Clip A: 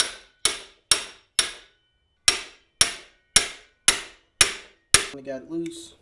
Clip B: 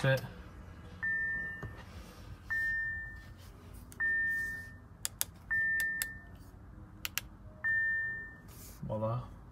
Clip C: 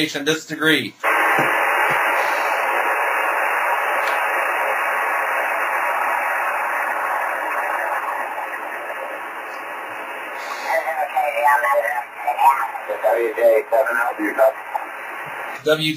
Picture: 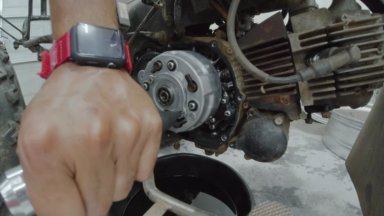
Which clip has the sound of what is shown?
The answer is A